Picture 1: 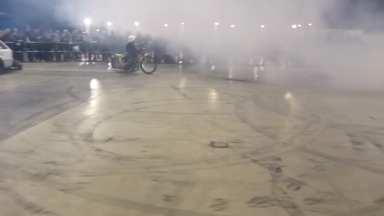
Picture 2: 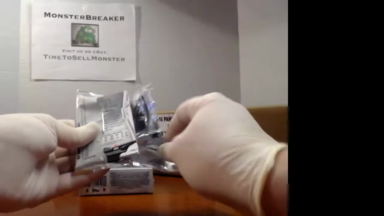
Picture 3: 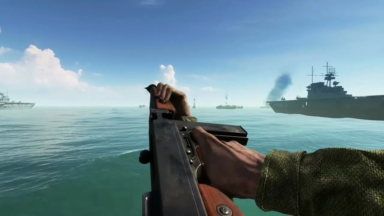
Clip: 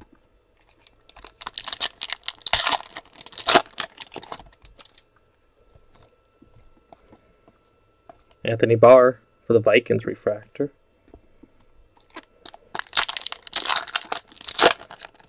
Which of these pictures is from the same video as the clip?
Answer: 2